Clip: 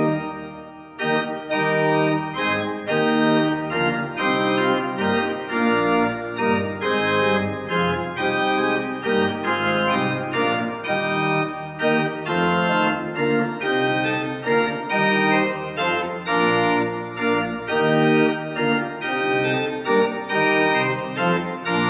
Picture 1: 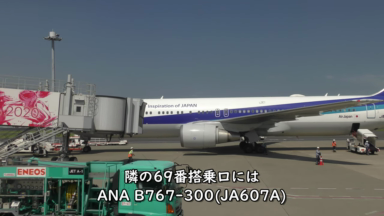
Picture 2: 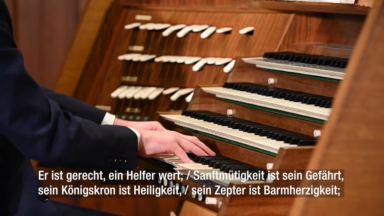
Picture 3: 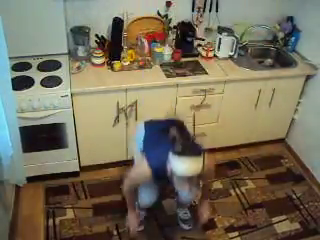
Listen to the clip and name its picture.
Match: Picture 2